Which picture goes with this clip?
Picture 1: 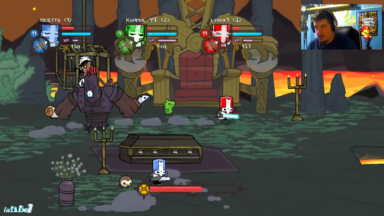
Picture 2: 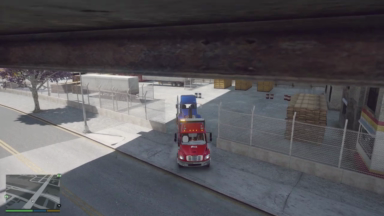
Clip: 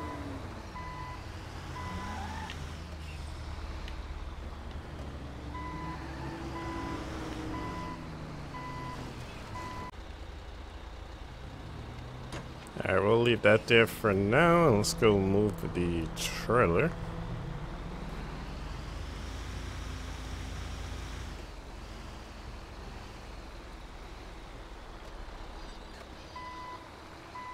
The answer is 2